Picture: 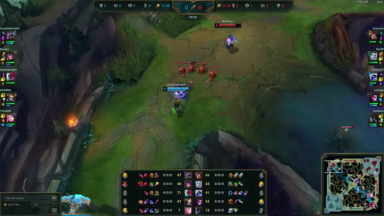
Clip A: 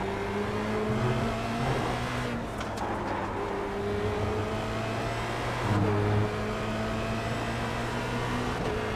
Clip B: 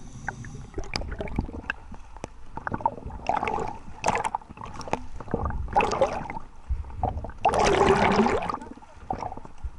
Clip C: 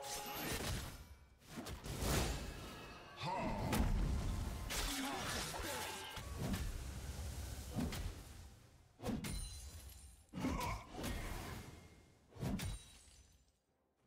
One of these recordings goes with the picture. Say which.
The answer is C